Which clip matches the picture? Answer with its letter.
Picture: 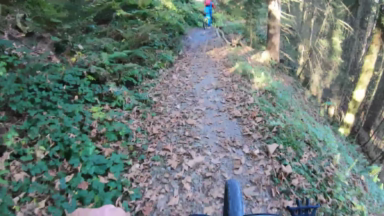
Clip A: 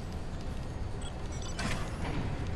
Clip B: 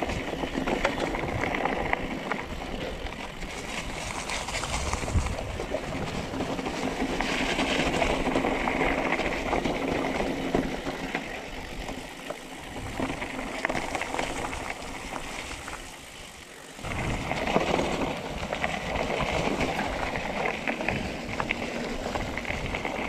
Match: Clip B